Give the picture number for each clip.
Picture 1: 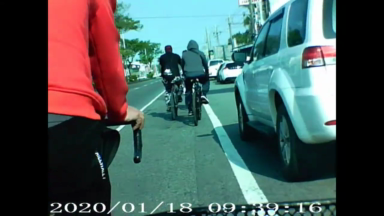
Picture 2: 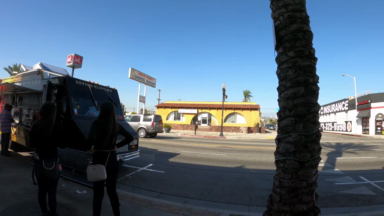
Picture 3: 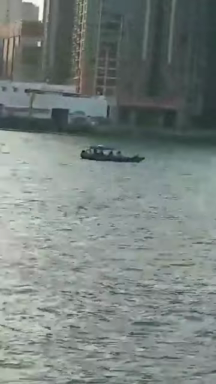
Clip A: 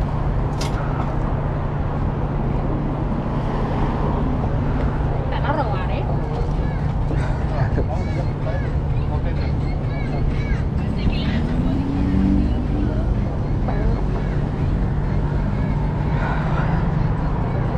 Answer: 2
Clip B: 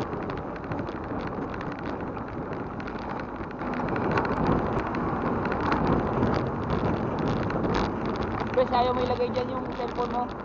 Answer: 1